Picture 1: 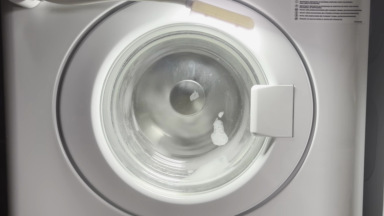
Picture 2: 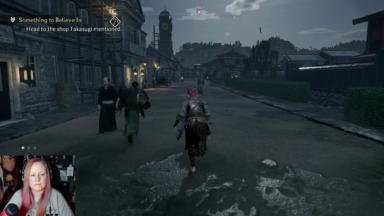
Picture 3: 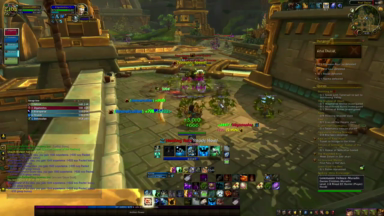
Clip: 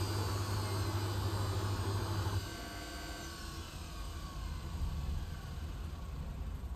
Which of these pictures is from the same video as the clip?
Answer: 1